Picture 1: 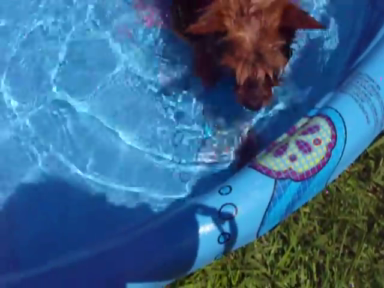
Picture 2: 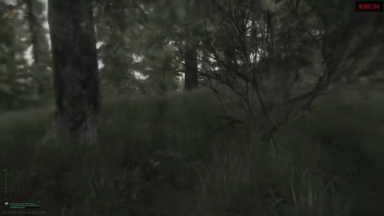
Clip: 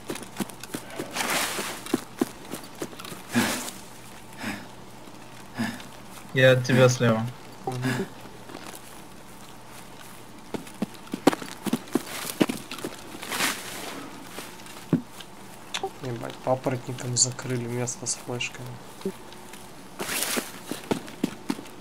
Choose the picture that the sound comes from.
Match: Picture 2